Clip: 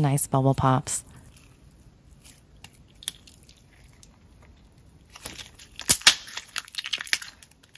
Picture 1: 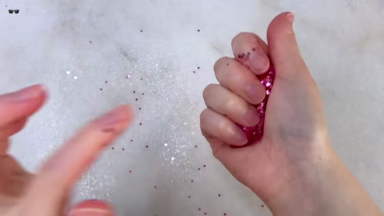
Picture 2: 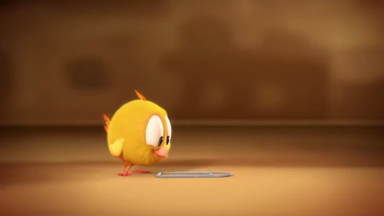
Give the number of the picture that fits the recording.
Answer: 1